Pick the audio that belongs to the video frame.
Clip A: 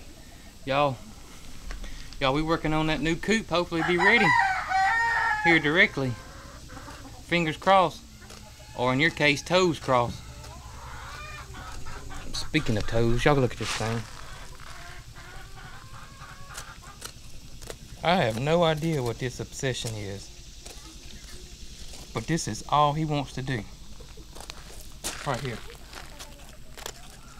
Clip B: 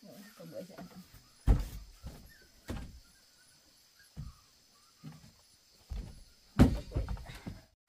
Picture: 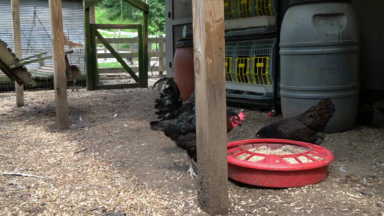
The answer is A